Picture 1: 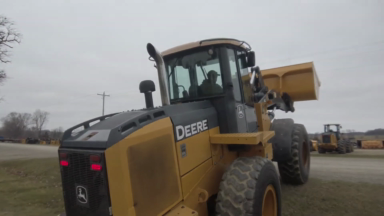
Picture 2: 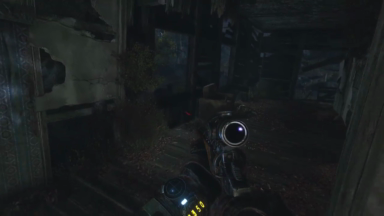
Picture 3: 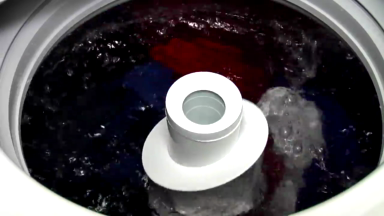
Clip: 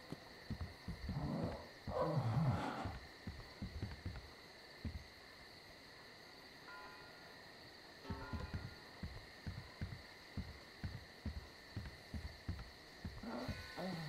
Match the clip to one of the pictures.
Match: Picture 2